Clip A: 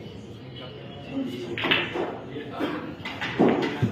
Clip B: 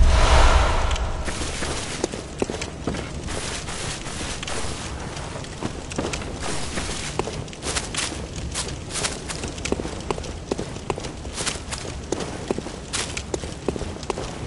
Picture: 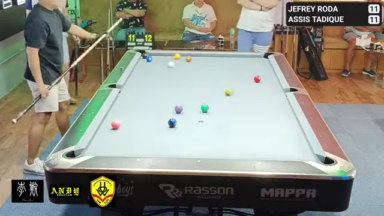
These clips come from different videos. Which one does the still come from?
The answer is A